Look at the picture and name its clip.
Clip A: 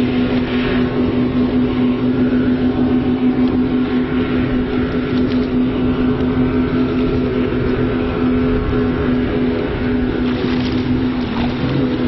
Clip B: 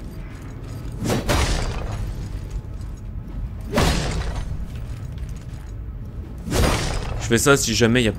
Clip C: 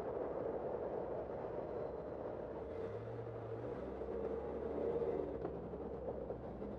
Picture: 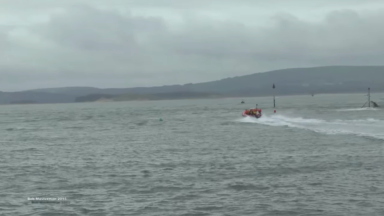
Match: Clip A